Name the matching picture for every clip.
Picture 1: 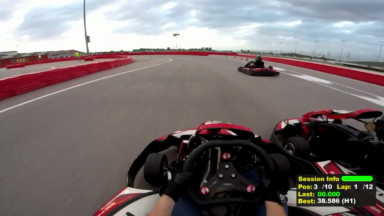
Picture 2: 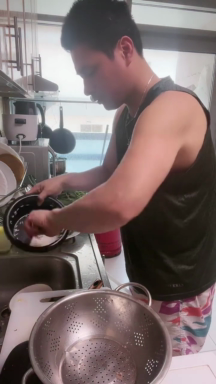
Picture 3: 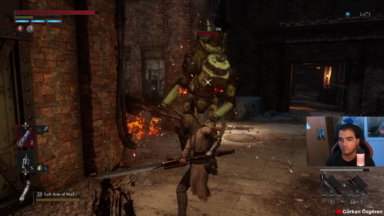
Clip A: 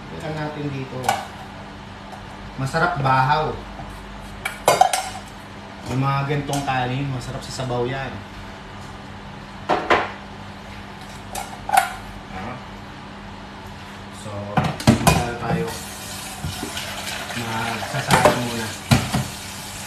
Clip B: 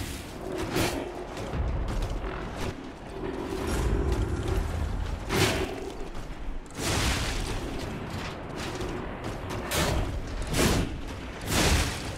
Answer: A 2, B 3